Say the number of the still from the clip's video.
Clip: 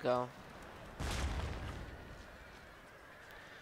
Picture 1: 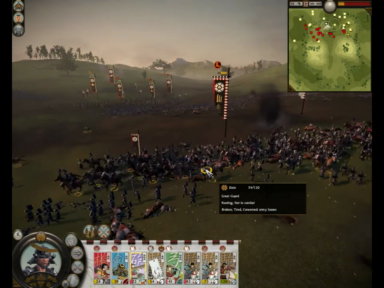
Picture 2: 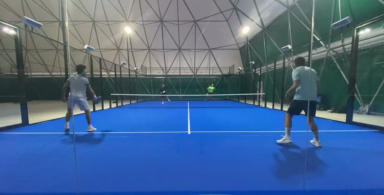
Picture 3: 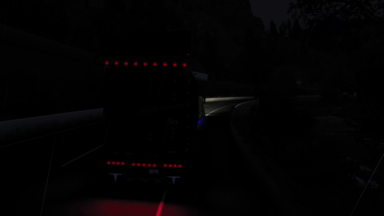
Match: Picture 1